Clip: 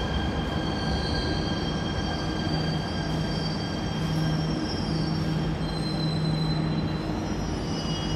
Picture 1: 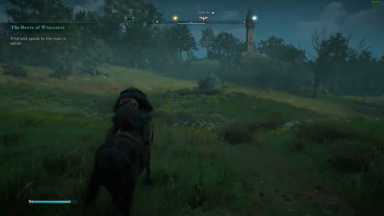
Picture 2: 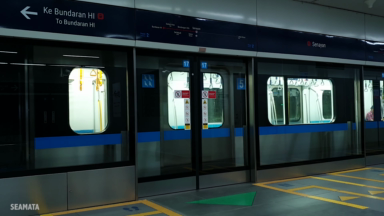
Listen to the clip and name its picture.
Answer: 2